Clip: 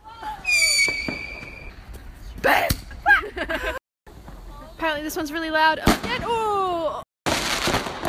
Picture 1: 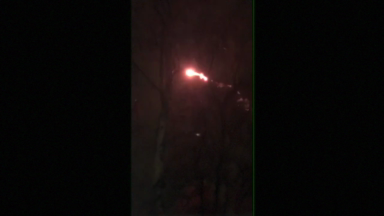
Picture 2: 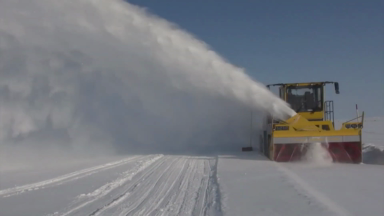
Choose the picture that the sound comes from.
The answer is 1